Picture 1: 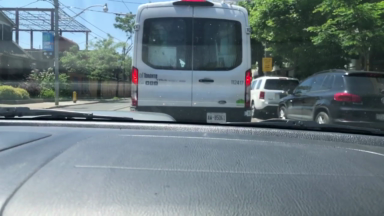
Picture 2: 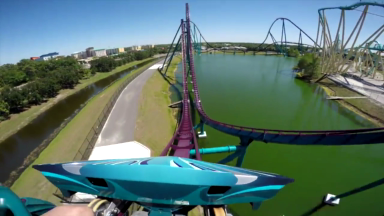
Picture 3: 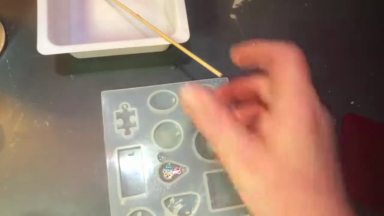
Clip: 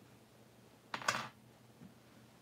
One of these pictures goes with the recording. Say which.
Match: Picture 3